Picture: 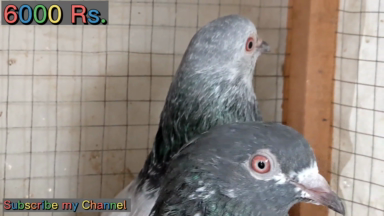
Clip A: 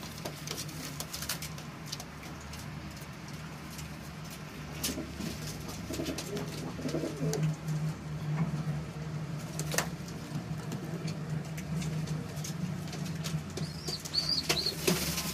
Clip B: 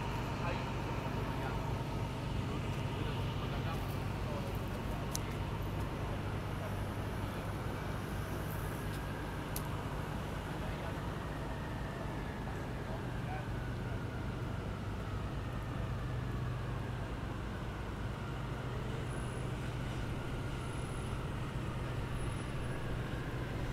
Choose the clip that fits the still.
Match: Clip A